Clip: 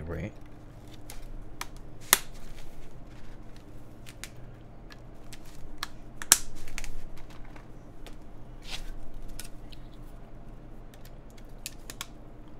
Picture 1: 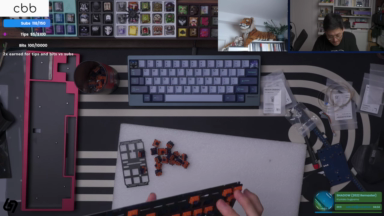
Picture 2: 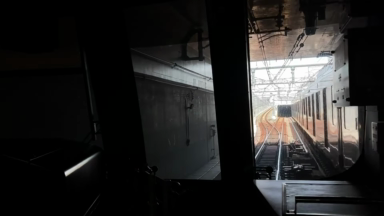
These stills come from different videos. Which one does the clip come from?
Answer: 1